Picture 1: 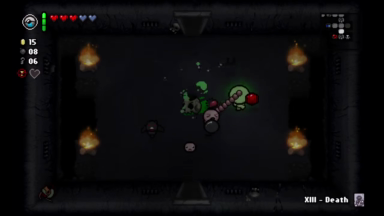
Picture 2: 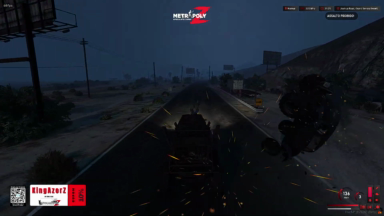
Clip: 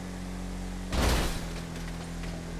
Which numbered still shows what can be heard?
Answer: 2